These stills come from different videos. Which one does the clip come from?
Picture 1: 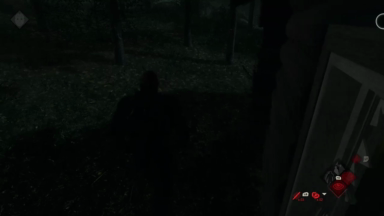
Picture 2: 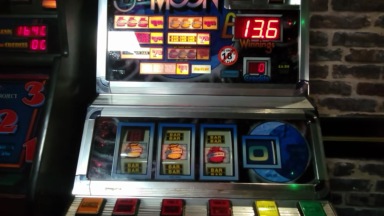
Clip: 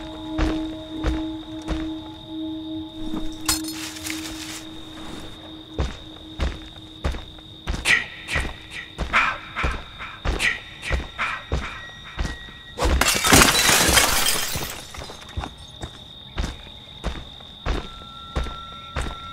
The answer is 1